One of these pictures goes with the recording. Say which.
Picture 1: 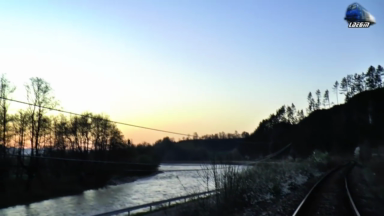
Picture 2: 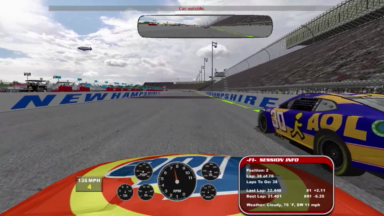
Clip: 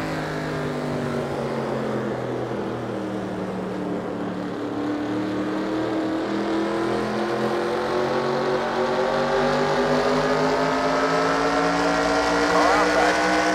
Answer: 2